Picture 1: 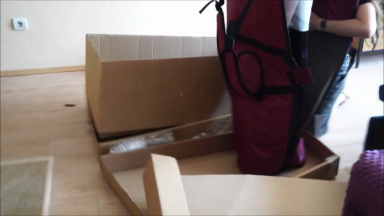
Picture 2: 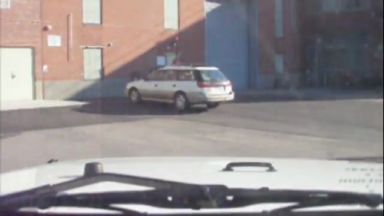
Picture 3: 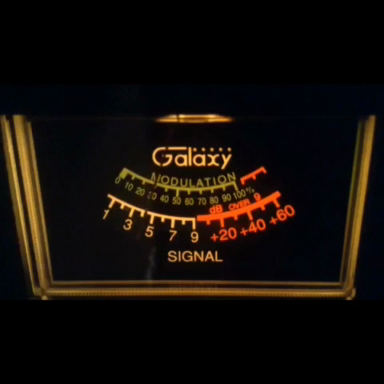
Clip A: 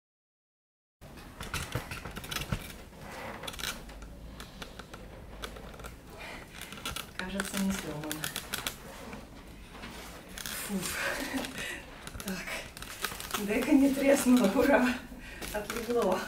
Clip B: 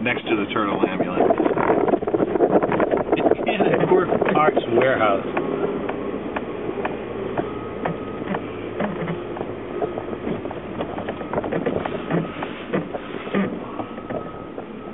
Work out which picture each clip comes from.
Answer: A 1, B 2